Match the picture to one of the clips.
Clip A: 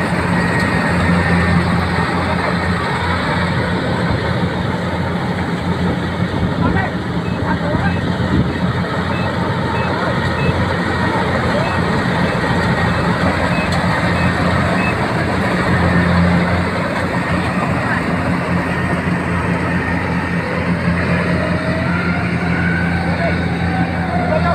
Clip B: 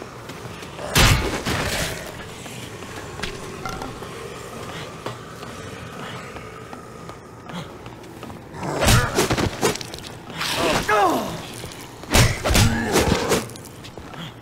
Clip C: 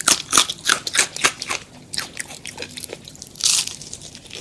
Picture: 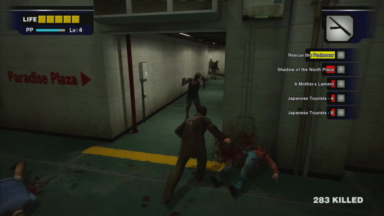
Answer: B